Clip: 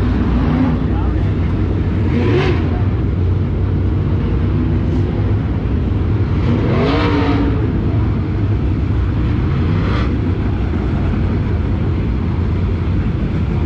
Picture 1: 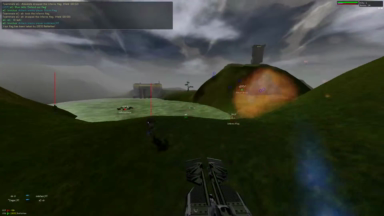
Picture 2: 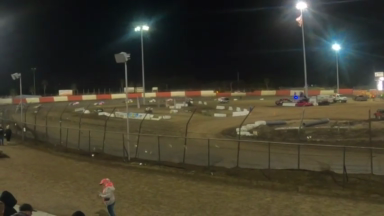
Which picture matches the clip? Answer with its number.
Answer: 2